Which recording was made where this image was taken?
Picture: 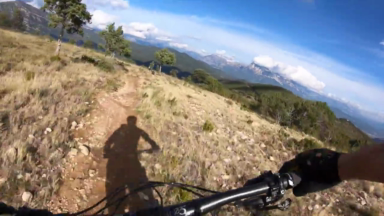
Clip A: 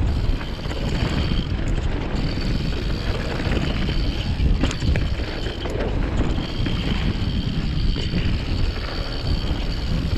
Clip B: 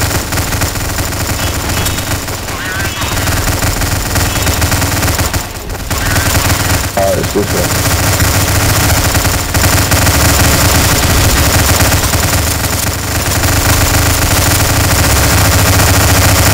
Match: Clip A